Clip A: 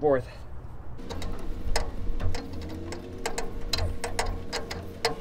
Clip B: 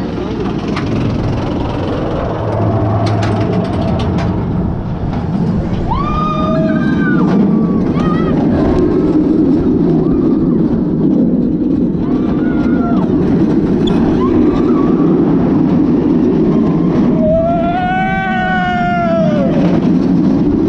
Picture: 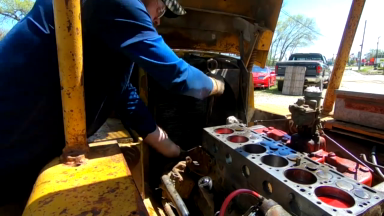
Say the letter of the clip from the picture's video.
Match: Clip A